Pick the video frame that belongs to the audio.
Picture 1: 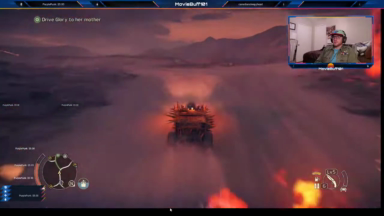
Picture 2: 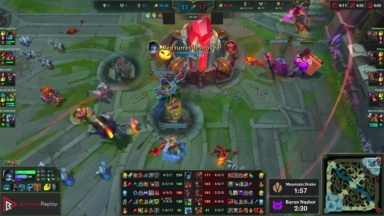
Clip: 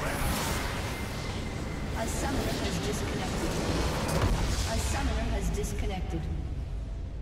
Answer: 2